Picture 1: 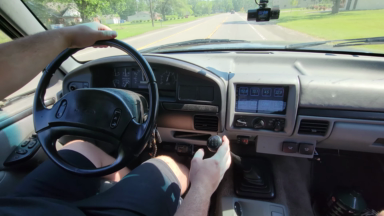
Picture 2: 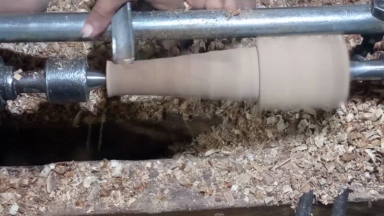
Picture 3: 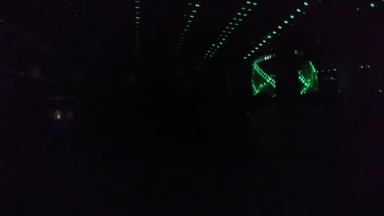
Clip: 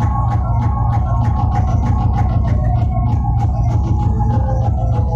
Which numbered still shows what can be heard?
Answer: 3